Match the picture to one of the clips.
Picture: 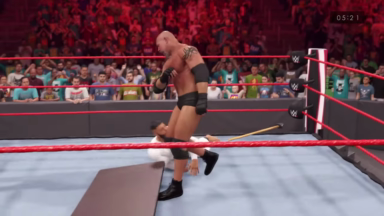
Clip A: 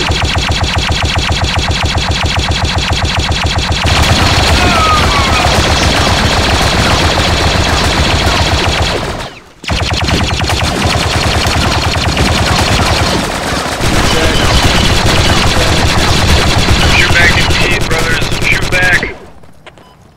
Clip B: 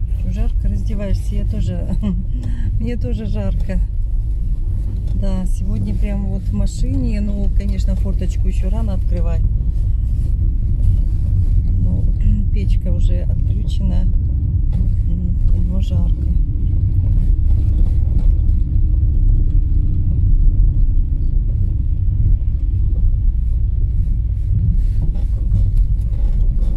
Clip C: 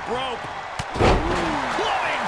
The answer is C